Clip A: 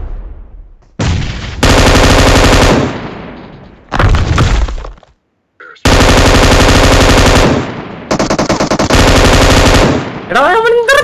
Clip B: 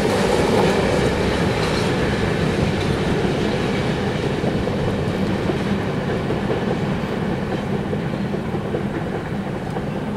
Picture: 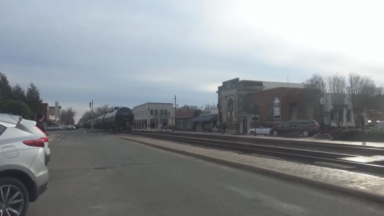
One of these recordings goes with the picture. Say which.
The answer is B